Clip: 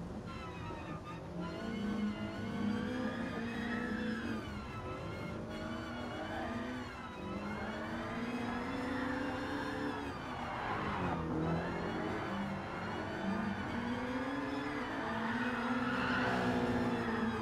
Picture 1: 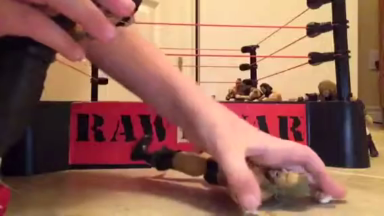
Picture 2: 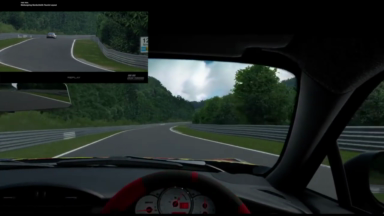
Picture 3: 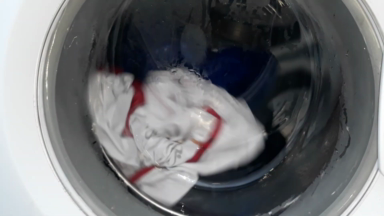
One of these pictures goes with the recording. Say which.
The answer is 2